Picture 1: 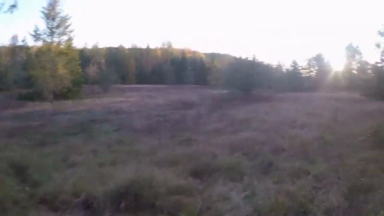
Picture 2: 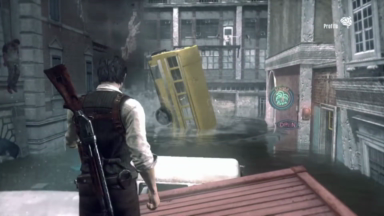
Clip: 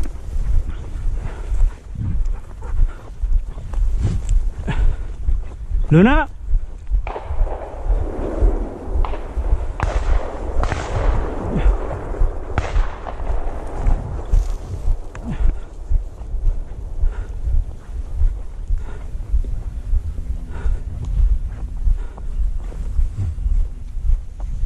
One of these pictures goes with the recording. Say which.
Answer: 1